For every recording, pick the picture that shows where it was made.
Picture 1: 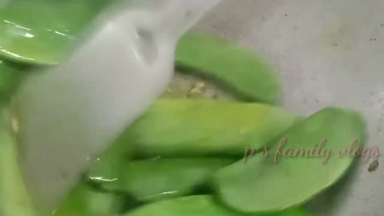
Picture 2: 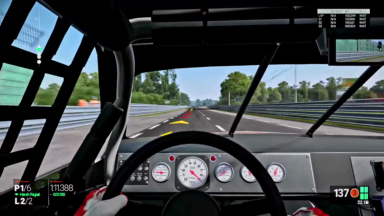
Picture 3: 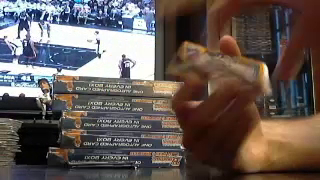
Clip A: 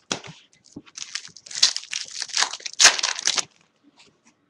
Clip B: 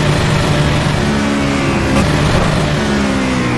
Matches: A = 3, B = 2